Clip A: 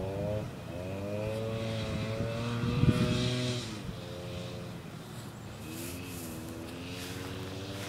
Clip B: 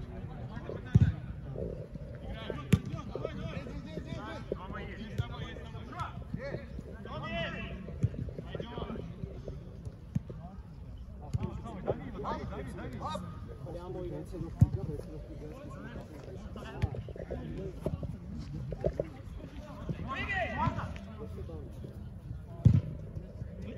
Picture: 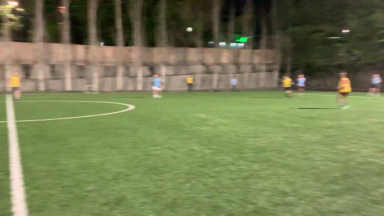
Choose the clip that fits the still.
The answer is B